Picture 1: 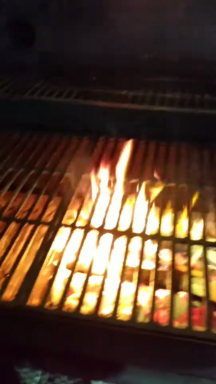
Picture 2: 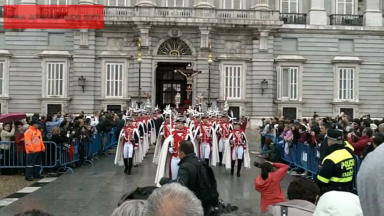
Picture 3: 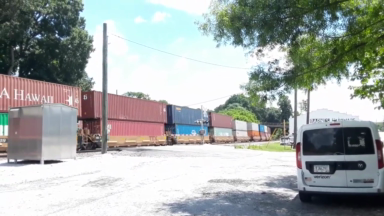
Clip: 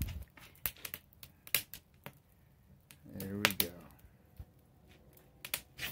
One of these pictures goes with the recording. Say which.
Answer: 1